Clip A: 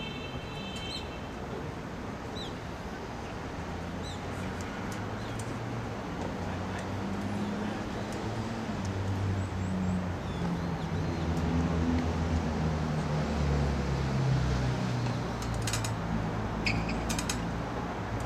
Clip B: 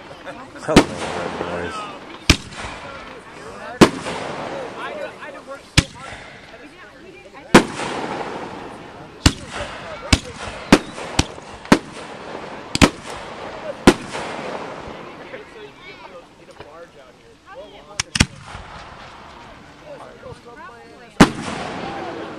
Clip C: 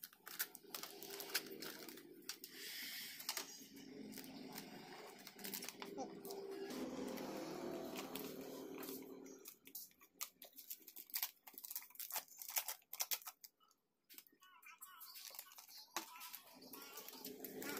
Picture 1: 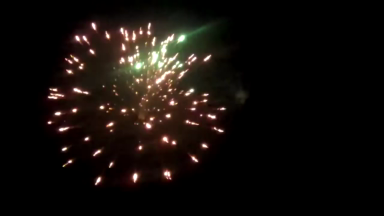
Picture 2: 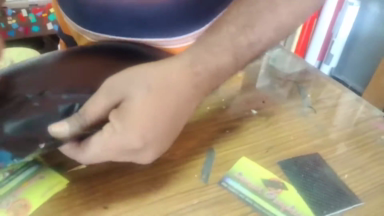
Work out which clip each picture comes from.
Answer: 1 B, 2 C